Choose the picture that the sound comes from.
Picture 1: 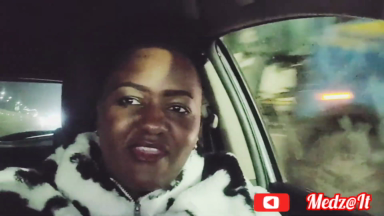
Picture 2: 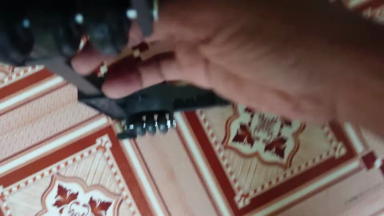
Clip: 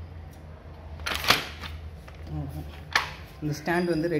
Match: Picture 2